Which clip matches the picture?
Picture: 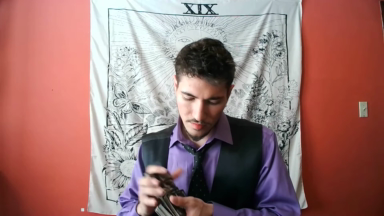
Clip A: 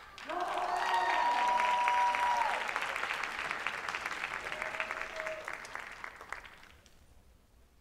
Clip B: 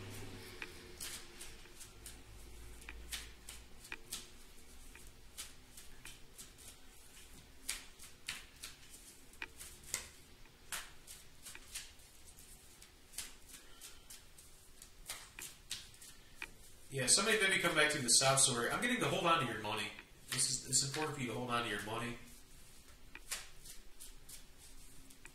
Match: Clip B